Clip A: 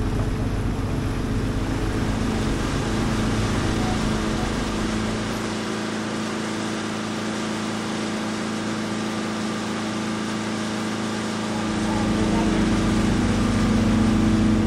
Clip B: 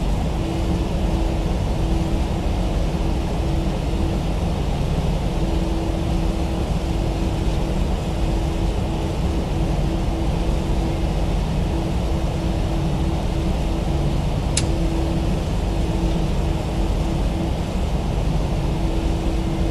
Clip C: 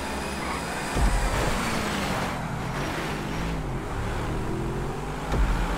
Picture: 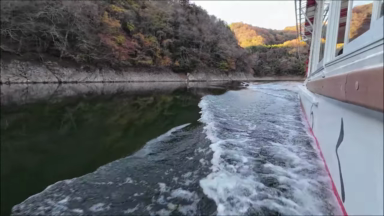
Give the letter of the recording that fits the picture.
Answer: A